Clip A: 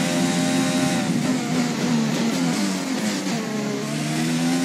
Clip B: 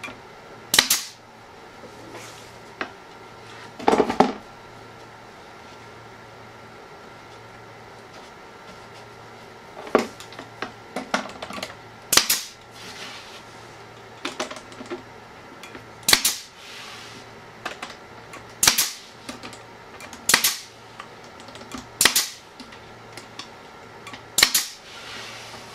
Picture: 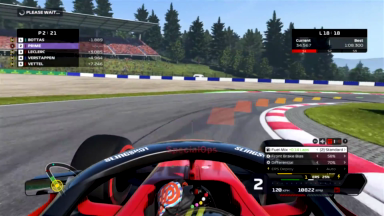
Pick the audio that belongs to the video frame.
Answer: A